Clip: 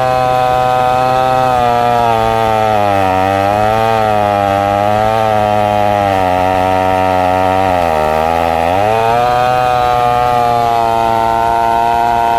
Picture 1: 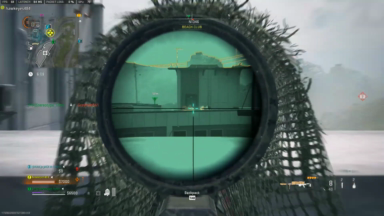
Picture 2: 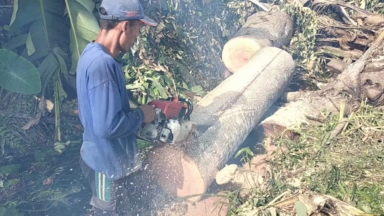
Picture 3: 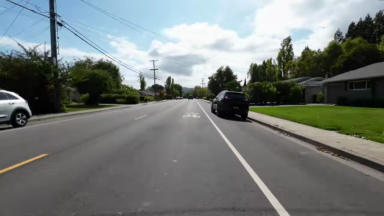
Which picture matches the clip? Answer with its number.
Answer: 2